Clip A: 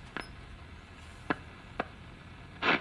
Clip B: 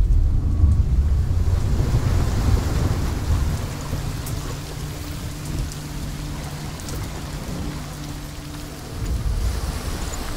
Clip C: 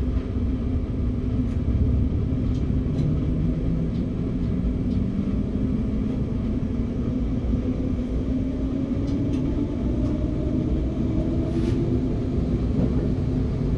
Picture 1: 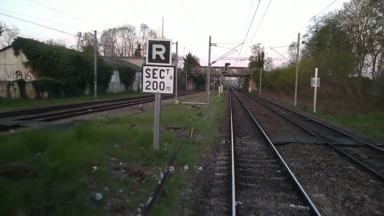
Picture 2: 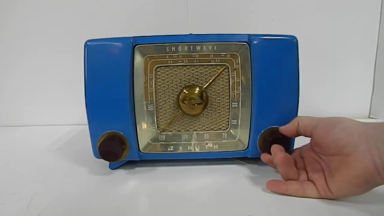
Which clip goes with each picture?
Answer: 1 C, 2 A